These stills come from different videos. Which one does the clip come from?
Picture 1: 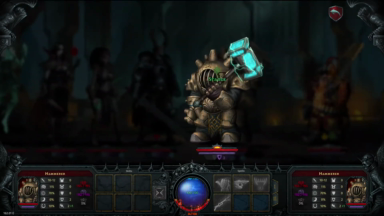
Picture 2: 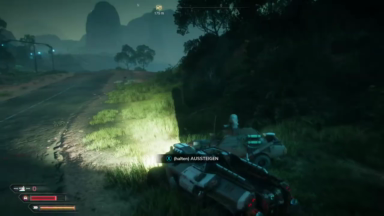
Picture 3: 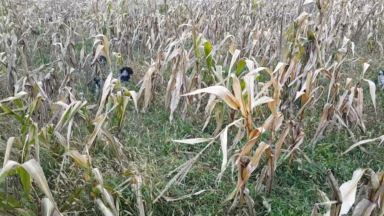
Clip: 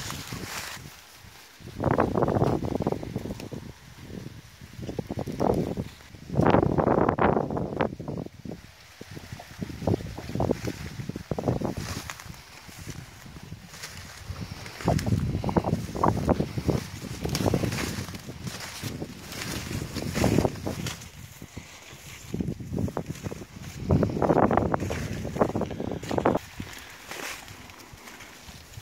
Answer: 3